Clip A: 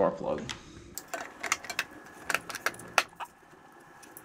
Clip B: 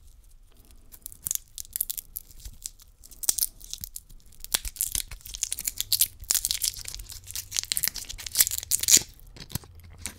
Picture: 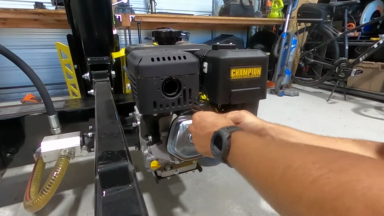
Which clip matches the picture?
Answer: A